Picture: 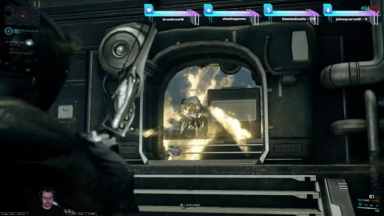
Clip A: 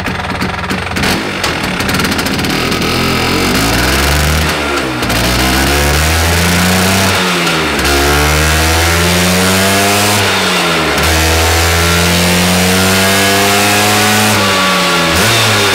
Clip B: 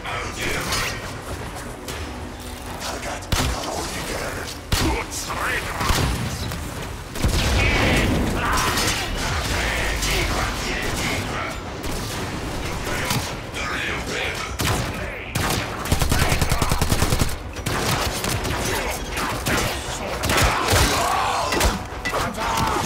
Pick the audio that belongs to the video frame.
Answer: B